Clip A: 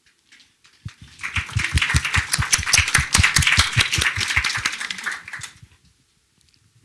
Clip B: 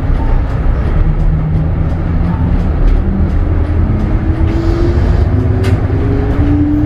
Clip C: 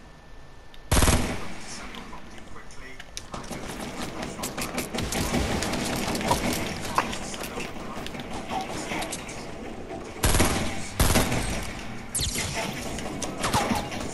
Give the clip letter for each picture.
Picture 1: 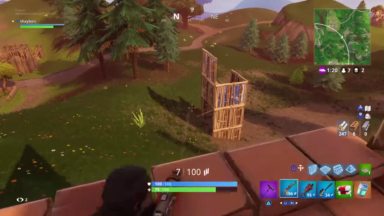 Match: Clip C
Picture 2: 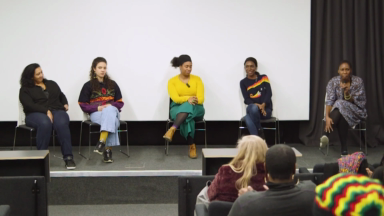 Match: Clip A